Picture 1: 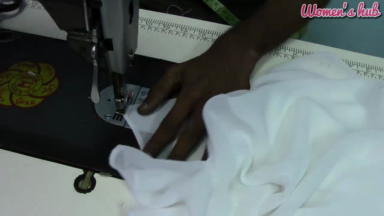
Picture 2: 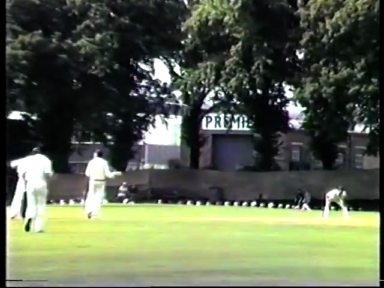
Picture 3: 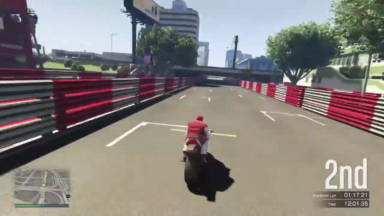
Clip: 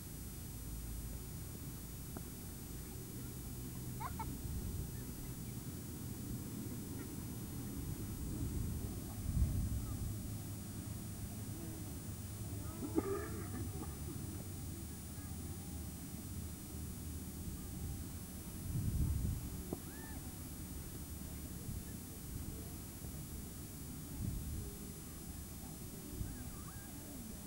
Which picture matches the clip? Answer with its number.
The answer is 2